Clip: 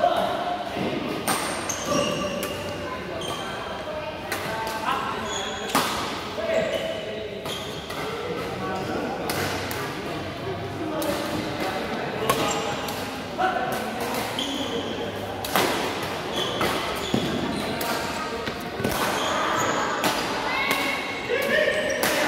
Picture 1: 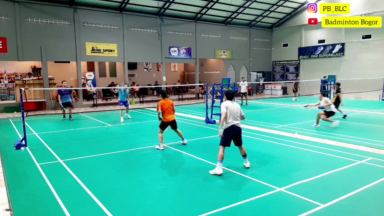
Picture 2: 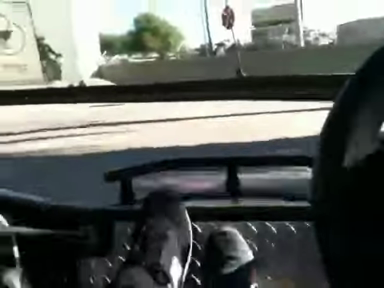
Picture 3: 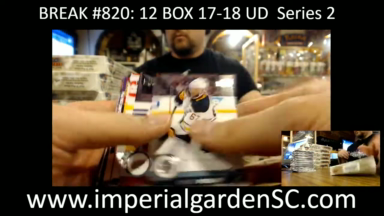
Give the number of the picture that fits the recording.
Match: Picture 1